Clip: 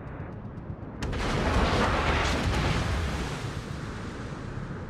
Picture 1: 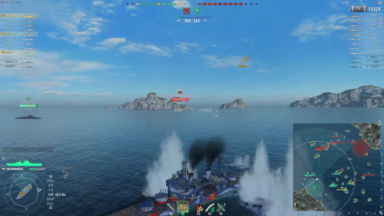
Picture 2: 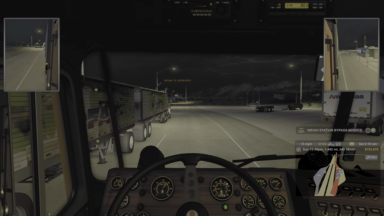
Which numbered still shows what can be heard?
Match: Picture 1